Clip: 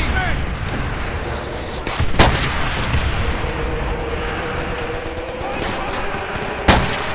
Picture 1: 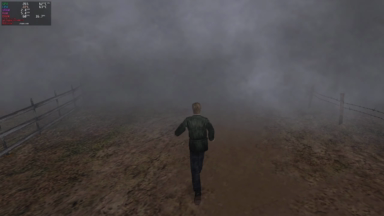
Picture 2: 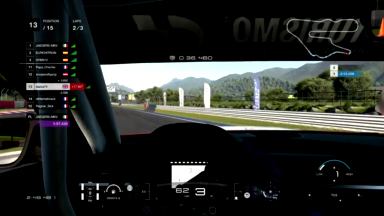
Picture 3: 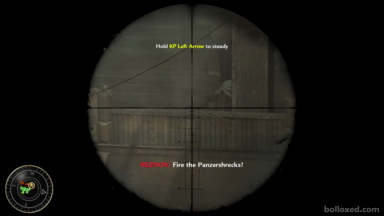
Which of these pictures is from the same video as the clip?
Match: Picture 3